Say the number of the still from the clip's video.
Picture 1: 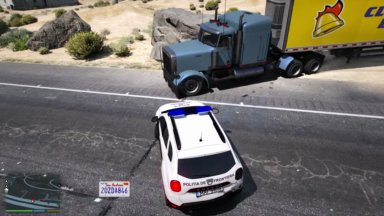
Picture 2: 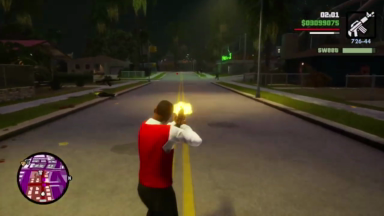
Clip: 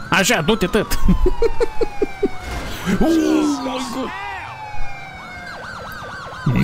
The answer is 1